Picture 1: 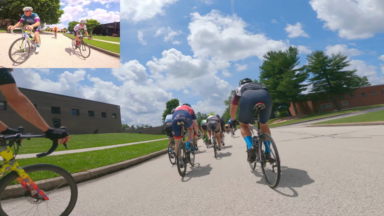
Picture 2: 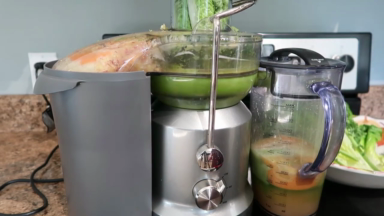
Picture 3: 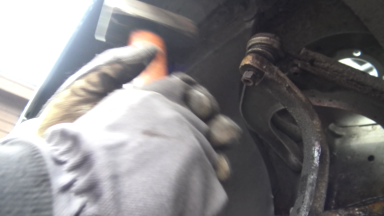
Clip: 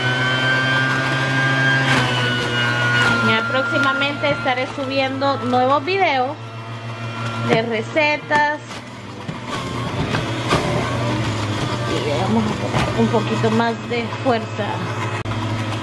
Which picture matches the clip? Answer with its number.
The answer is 2